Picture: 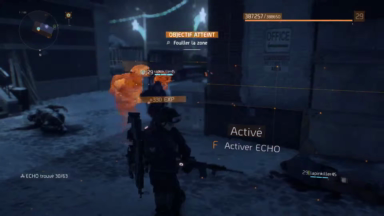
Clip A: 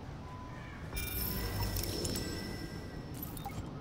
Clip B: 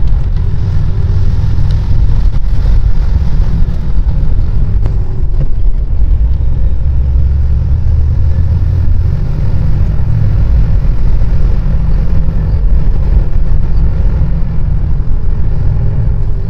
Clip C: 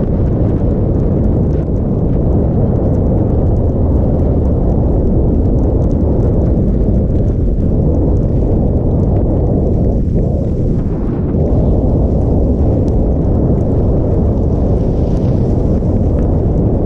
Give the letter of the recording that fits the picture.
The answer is A